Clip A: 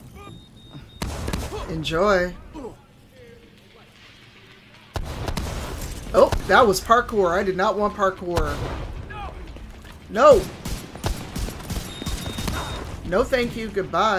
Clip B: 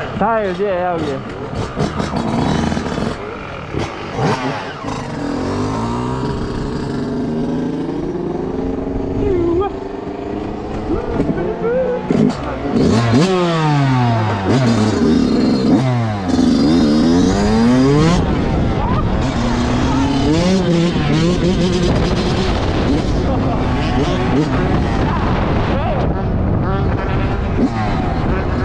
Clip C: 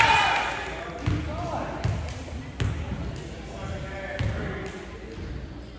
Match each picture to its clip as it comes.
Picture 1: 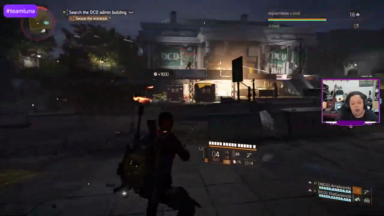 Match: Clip A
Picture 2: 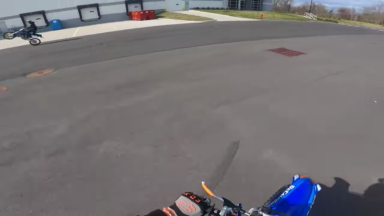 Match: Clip B